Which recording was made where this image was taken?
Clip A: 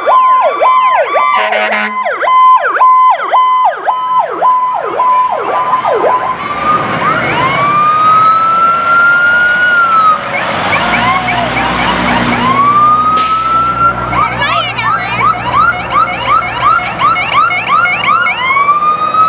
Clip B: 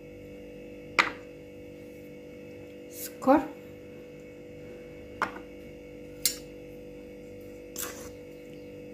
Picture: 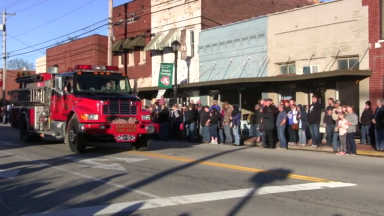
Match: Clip A